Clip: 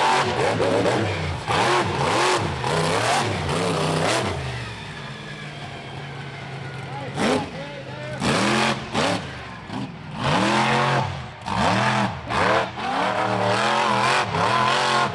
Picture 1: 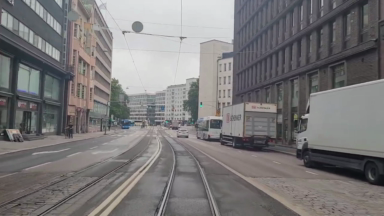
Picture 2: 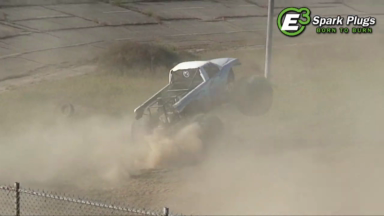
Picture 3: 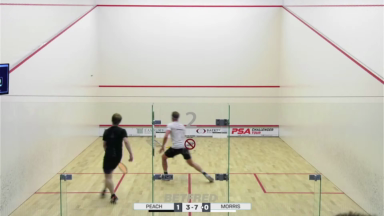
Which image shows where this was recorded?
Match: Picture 2